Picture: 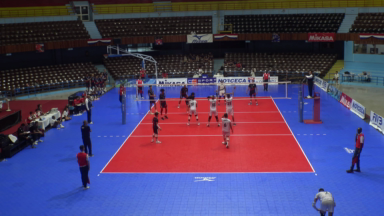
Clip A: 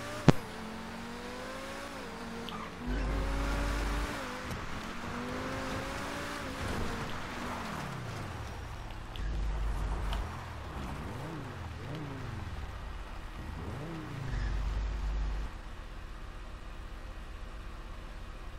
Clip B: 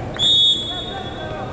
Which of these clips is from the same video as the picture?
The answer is B